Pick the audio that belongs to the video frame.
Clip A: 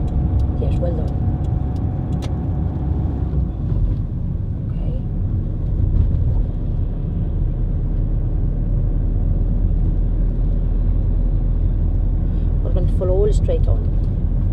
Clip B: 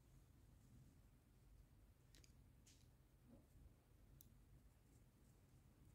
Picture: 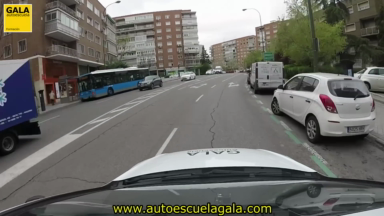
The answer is A